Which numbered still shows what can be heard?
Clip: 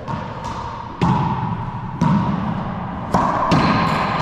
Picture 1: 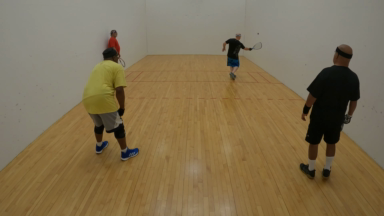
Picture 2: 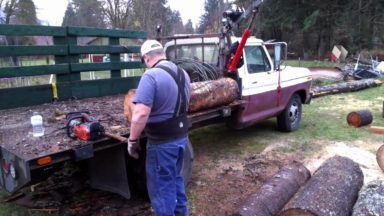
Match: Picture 1